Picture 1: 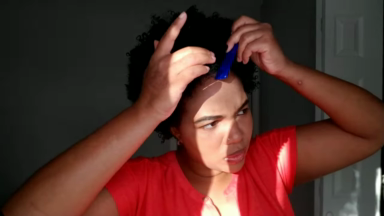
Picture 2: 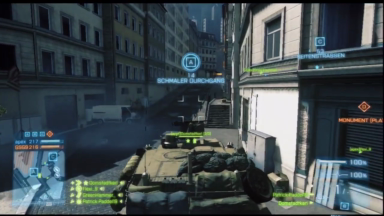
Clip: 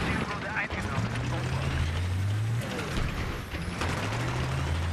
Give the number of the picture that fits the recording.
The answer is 2